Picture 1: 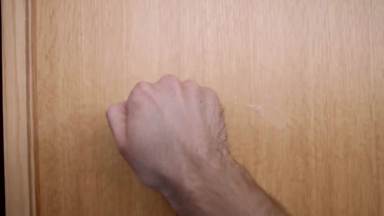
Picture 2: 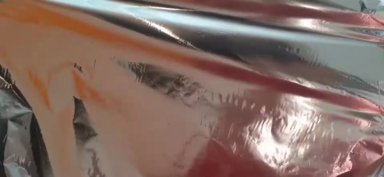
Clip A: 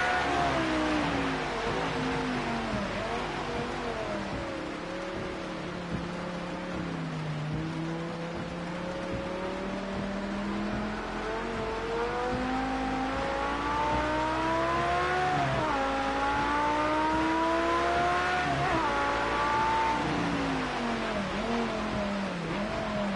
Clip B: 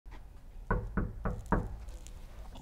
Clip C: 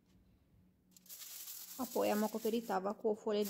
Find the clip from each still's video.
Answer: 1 B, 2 C